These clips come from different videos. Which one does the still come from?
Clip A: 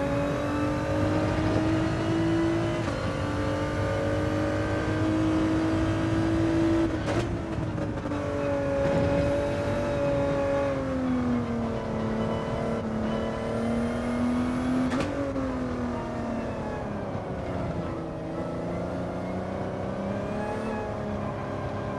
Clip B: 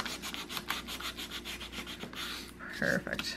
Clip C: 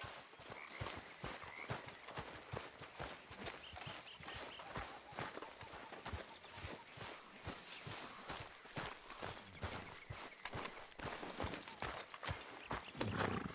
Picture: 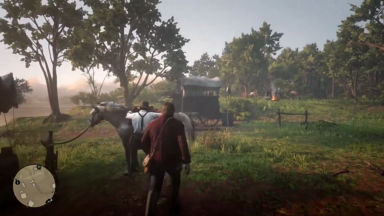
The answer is C